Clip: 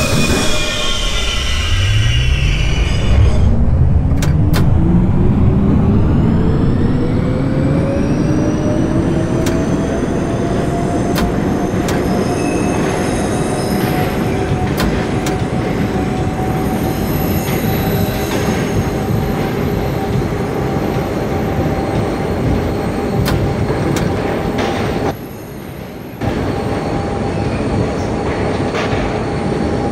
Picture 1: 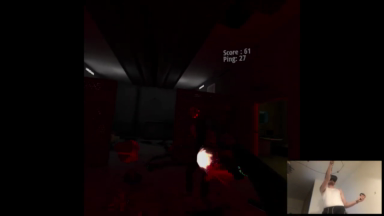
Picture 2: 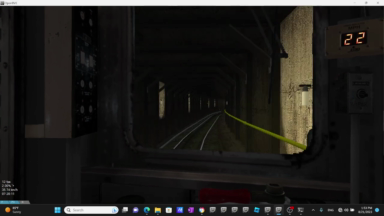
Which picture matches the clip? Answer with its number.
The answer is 2